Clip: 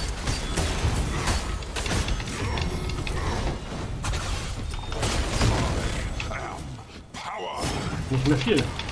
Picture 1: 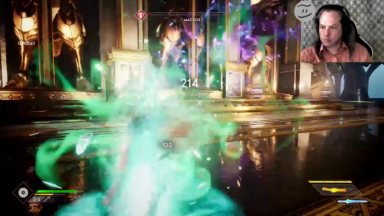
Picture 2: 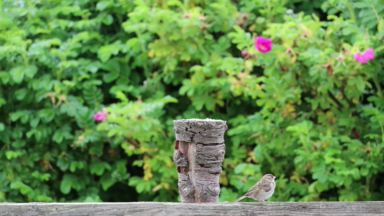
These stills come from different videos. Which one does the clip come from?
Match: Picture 1